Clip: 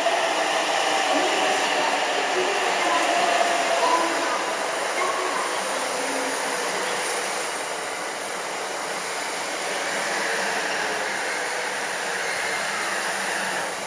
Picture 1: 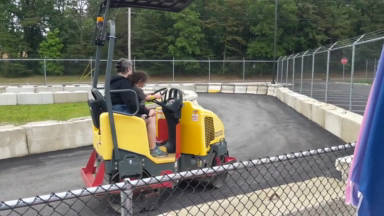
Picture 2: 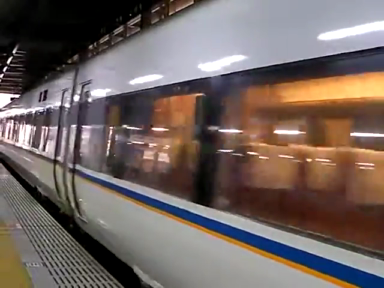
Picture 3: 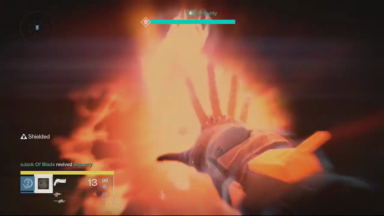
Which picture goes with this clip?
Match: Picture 2